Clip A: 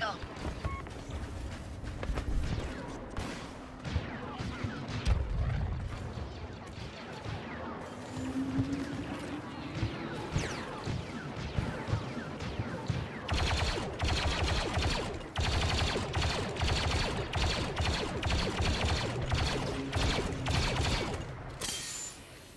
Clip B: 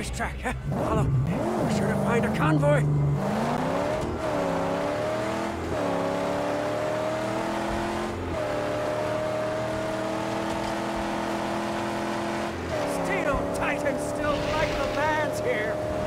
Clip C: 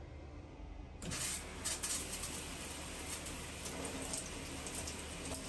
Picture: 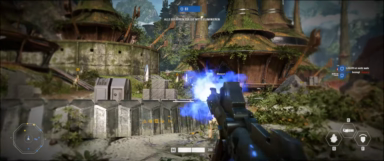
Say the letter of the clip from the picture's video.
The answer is A